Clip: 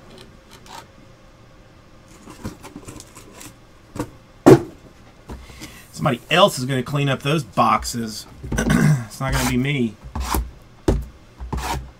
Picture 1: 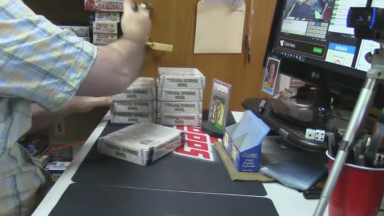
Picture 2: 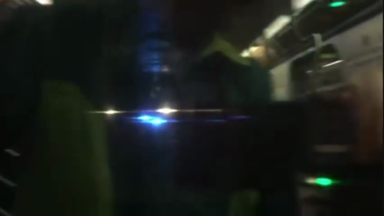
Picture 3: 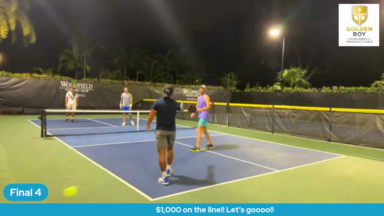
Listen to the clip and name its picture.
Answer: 1